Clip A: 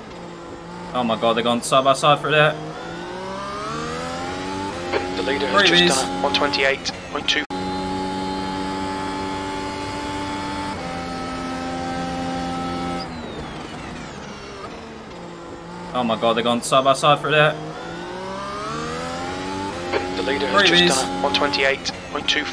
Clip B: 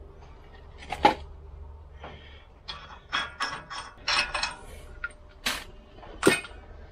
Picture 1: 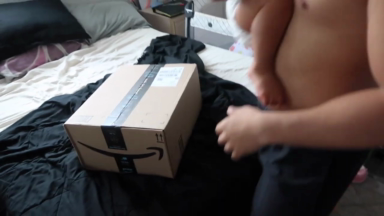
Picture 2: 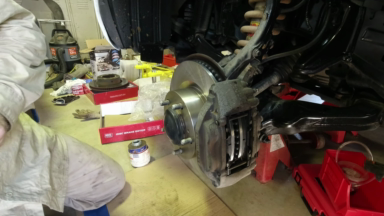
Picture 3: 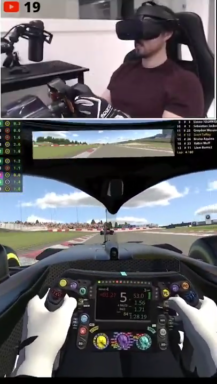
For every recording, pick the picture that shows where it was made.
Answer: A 3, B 2